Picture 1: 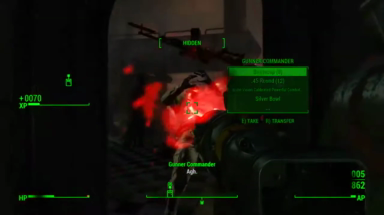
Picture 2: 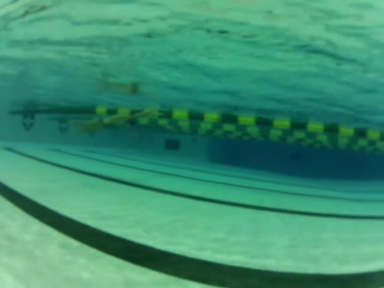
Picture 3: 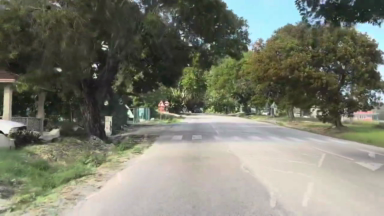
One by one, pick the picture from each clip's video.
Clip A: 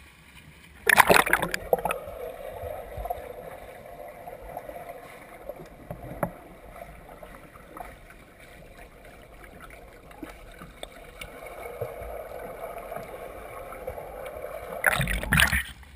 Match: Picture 2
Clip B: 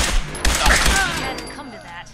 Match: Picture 1